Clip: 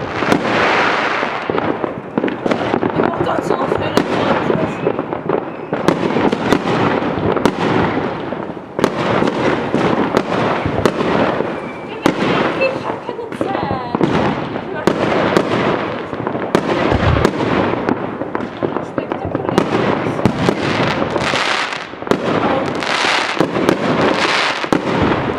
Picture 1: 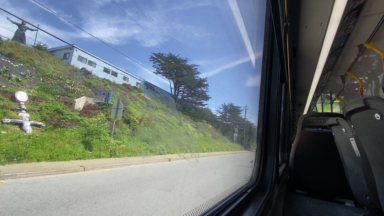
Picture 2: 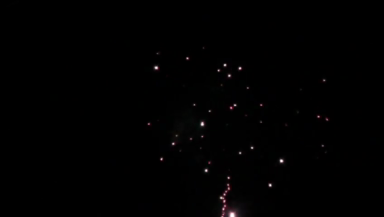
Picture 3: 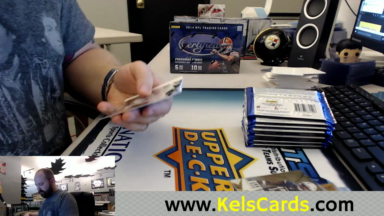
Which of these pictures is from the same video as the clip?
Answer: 2